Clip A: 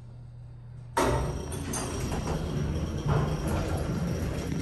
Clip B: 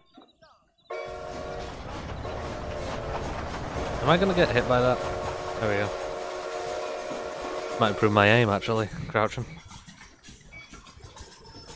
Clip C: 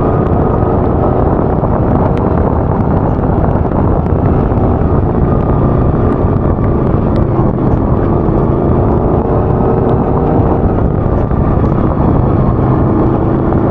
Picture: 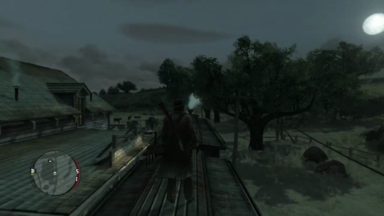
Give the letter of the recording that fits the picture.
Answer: B